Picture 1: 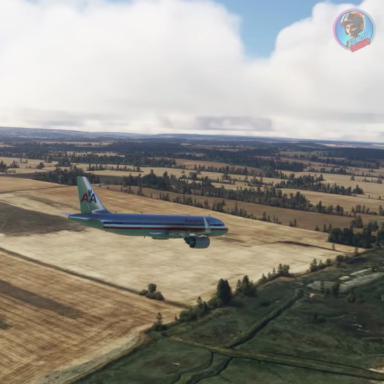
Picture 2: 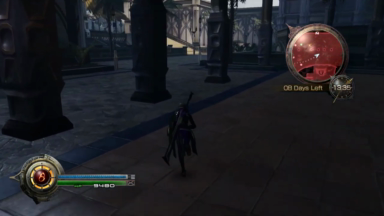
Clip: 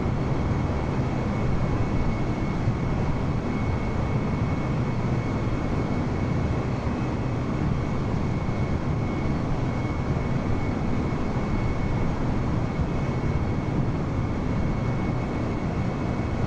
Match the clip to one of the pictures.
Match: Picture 1